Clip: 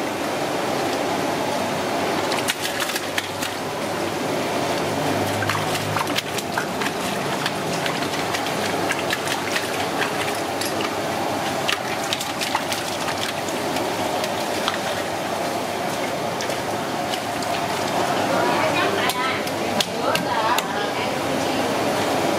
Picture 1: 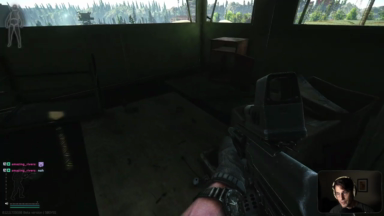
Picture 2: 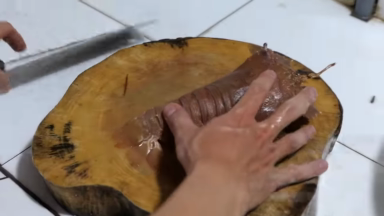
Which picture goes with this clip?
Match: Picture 2